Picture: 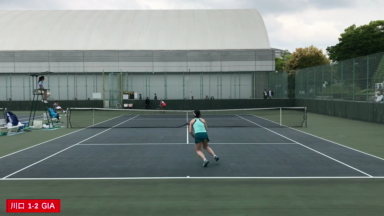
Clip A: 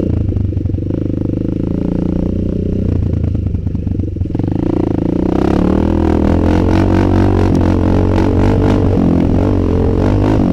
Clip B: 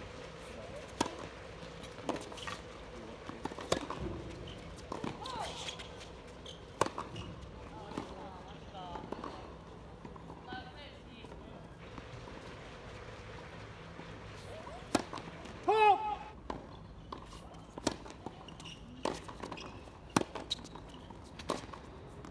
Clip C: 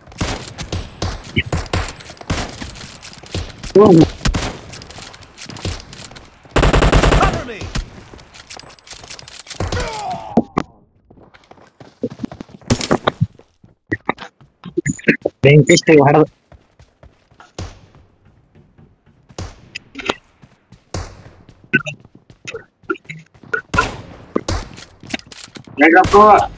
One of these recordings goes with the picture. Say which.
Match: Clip B